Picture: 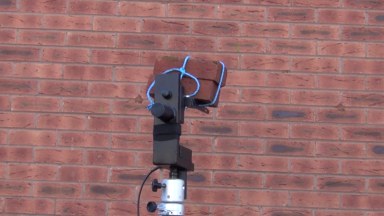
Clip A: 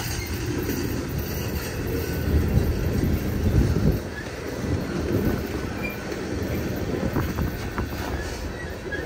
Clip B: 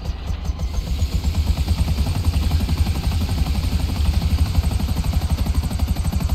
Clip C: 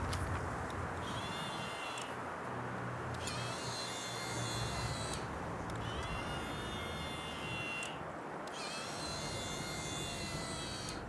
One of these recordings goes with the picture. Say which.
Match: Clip C